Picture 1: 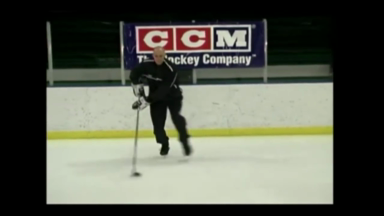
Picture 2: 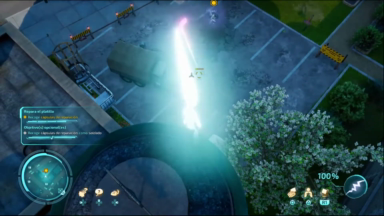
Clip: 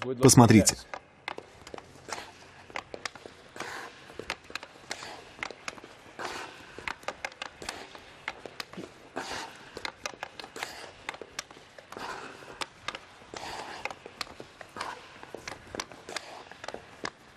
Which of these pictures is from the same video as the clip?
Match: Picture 1